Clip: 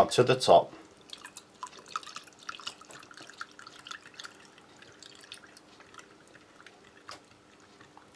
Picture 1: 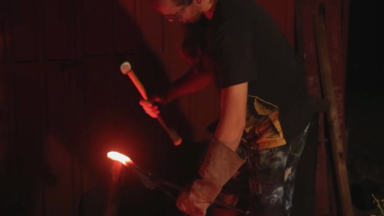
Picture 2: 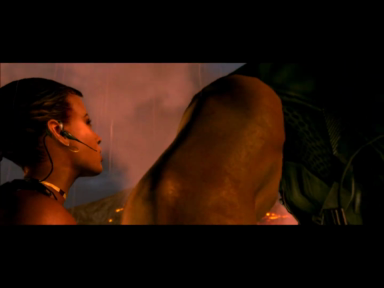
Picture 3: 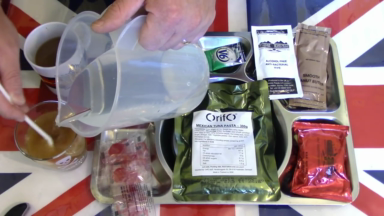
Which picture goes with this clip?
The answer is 3